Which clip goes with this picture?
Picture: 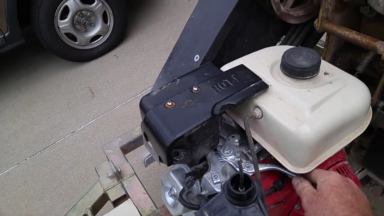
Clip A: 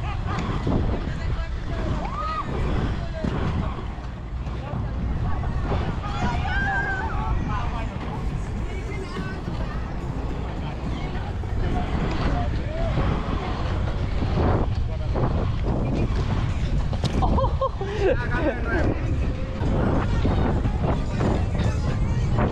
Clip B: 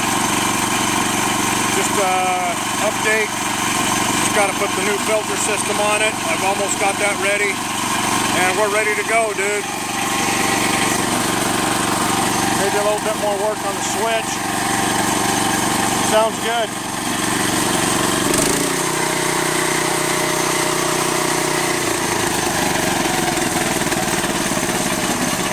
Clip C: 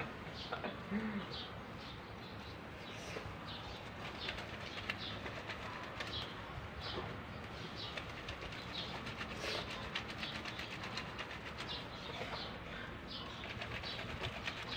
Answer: B